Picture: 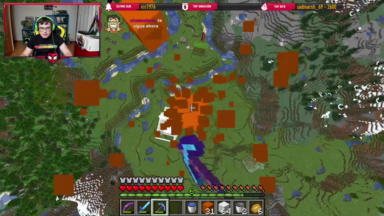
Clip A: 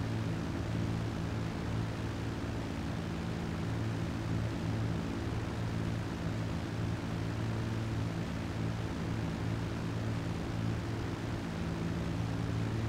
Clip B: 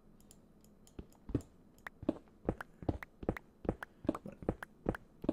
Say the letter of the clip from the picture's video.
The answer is B